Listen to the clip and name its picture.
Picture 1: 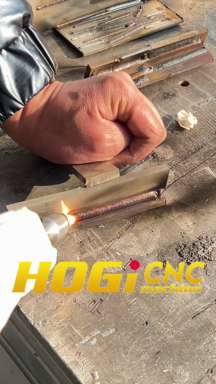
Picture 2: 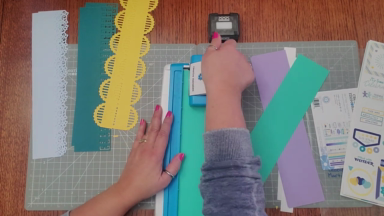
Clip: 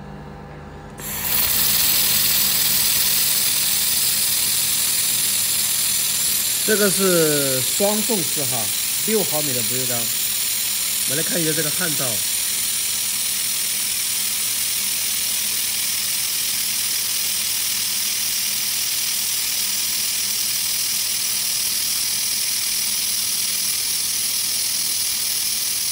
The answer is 1